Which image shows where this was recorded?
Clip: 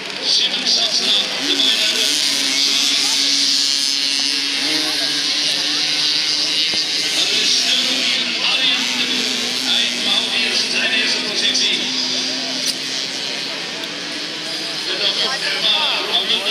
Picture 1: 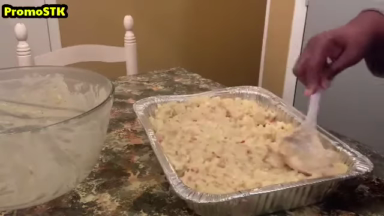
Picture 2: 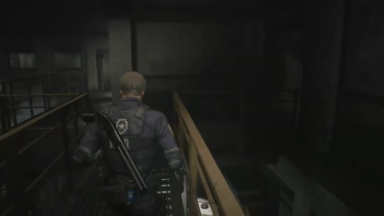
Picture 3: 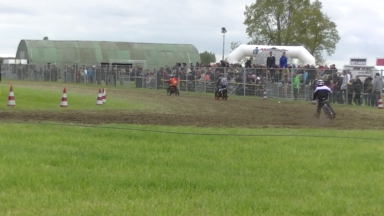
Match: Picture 3